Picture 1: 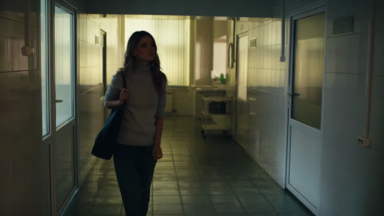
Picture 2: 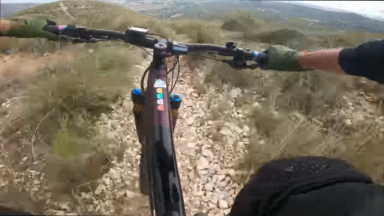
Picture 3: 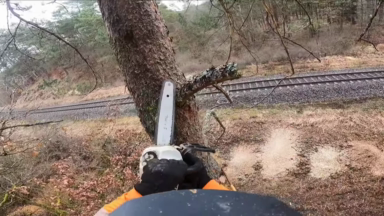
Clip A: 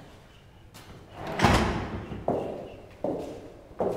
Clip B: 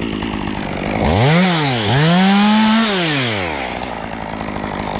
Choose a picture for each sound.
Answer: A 1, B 3